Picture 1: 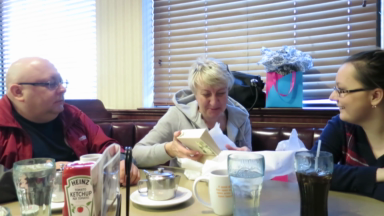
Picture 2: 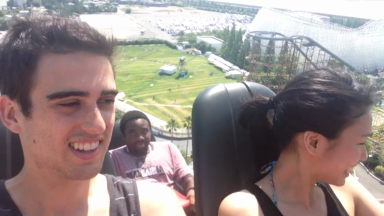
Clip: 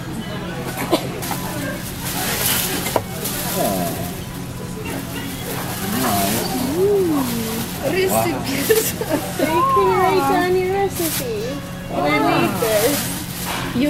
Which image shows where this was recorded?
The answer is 1